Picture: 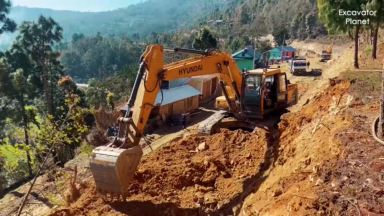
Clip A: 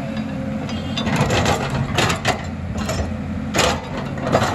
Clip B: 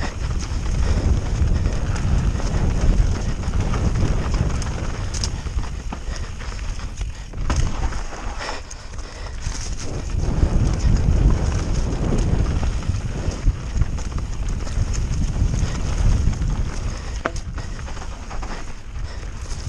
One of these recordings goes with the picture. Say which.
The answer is A